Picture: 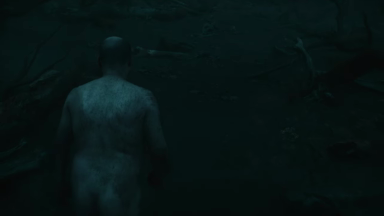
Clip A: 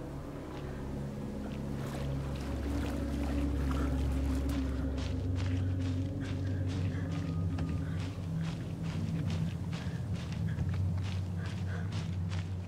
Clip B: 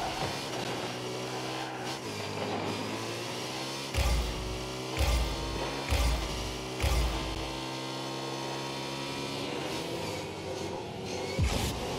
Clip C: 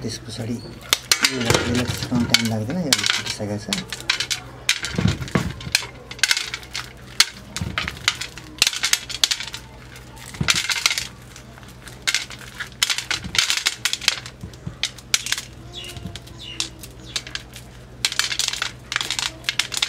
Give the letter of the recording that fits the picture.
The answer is A